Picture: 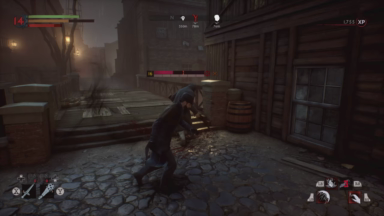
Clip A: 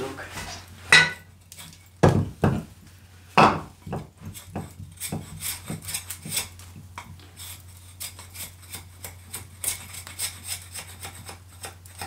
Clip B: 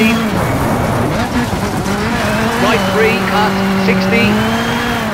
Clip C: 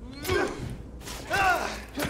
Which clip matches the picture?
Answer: C